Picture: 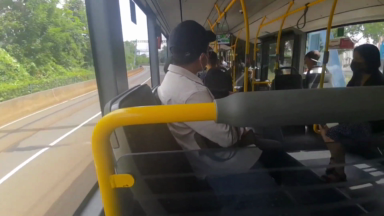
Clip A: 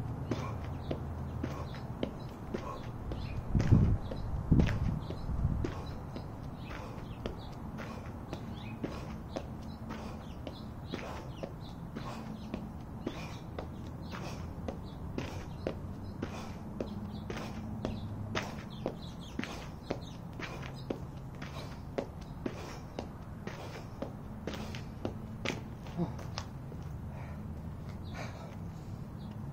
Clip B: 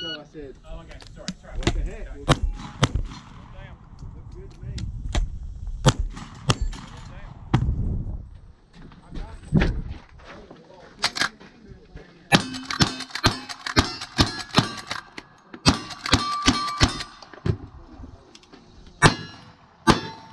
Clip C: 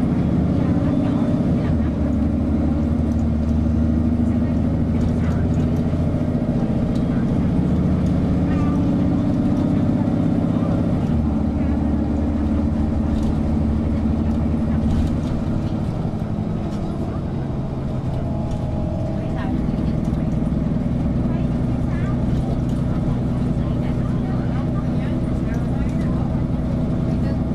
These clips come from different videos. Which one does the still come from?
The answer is C